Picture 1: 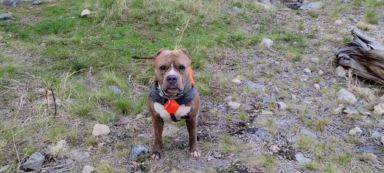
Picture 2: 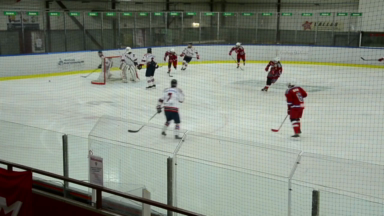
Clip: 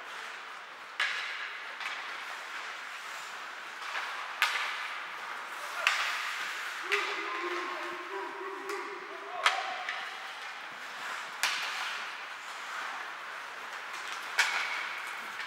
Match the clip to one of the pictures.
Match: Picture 2